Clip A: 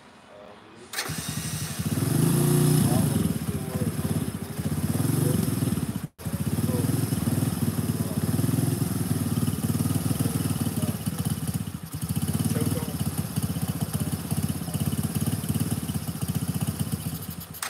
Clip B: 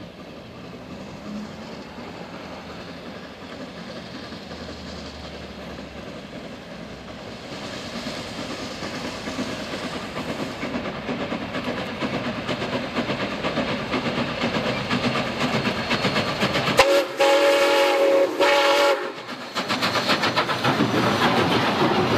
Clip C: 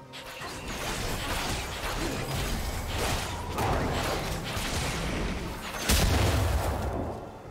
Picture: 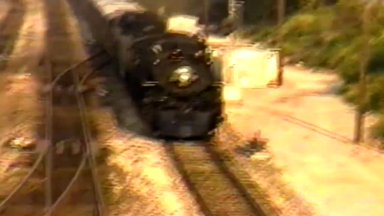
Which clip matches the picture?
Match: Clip B